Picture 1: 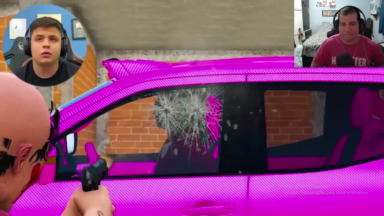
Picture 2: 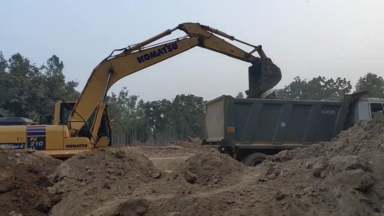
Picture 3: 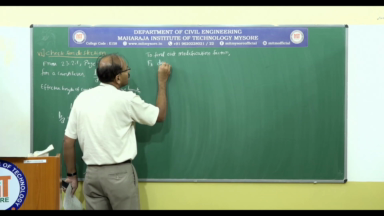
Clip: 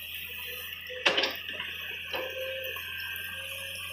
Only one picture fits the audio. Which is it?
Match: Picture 2